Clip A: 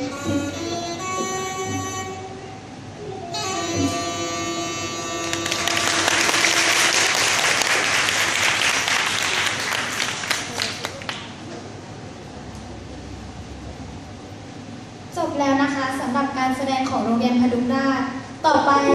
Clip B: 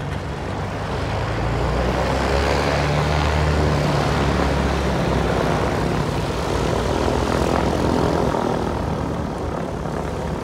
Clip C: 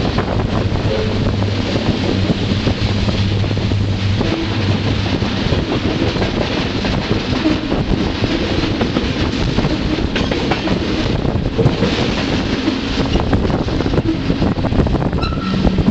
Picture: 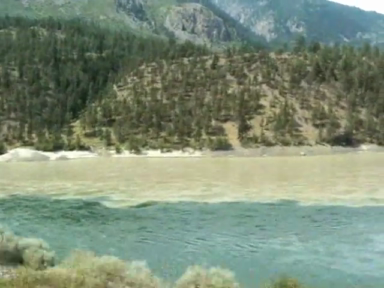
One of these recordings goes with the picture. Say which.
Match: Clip C